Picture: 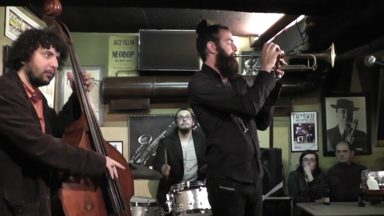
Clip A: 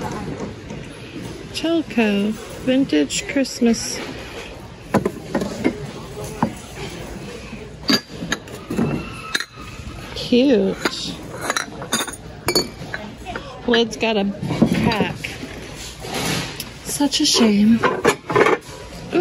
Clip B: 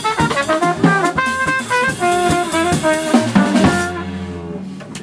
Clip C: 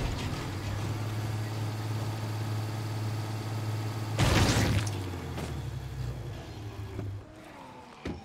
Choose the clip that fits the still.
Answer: B